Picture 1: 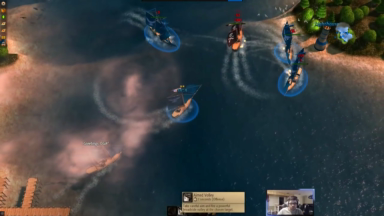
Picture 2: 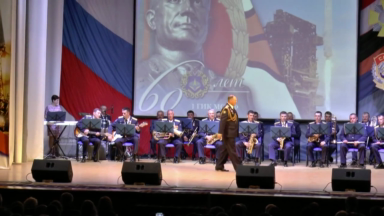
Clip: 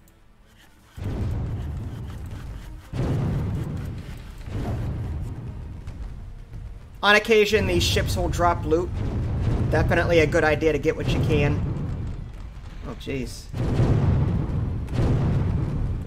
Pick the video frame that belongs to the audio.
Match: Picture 1